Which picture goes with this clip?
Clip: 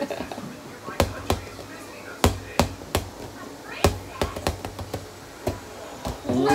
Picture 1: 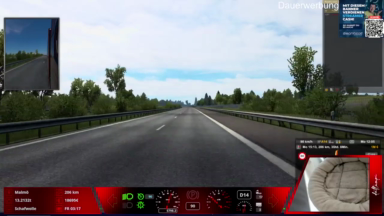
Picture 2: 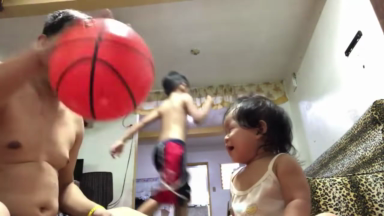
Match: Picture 2